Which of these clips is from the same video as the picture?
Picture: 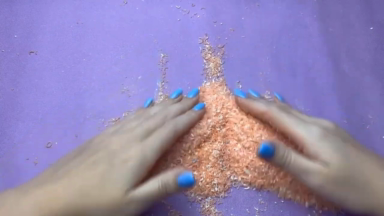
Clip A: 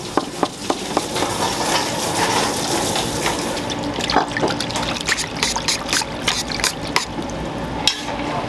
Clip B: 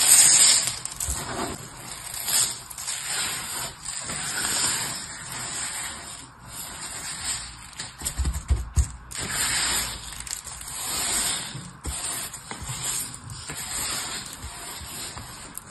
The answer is B